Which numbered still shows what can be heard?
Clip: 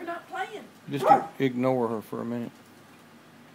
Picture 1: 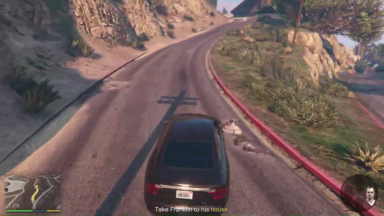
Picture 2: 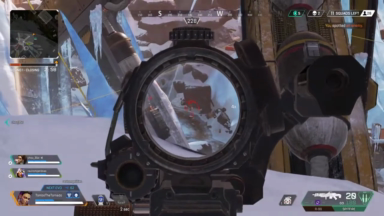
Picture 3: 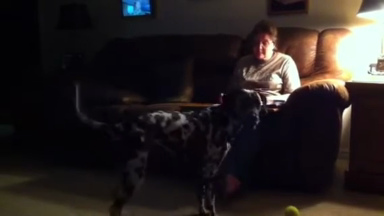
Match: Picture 3